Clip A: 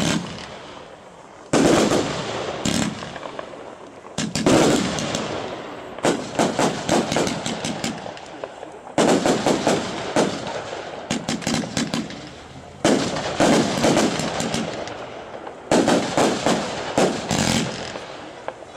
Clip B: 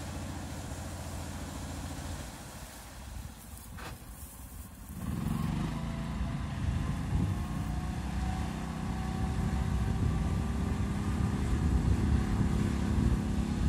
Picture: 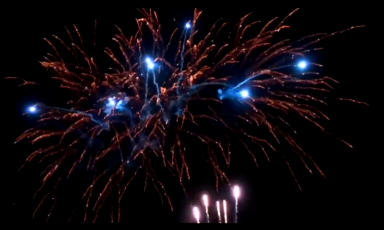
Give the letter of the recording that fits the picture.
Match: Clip A